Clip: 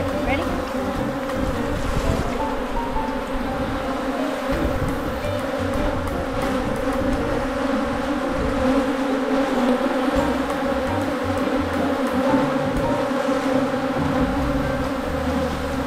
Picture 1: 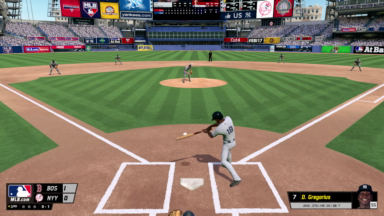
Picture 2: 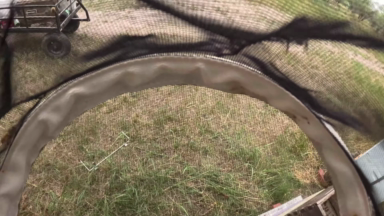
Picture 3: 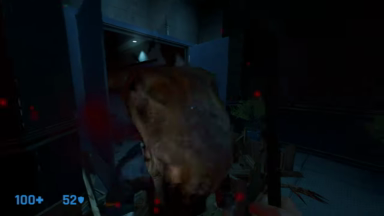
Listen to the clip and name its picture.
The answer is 2